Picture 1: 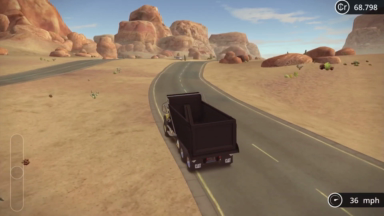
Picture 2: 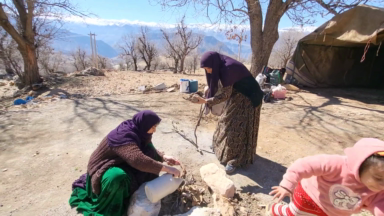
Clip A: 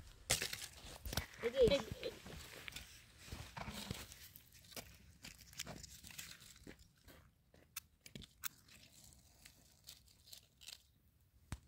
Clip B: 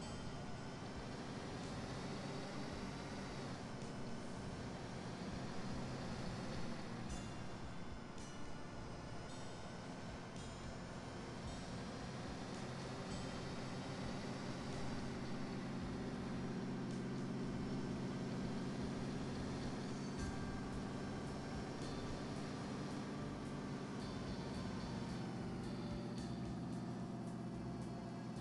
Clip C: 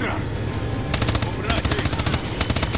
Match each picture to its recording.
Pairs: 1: B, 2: A